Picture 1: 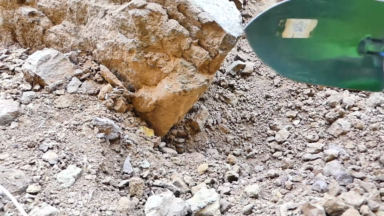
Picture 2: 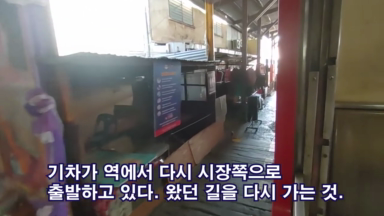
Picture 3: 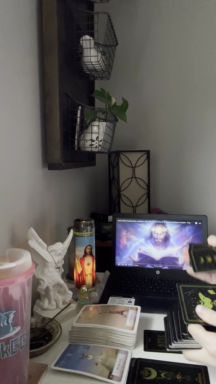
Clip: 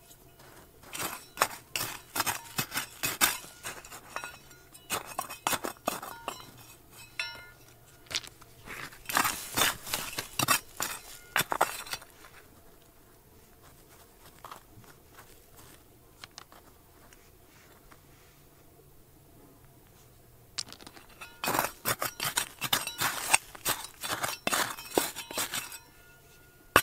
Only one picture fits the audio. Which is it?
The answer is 1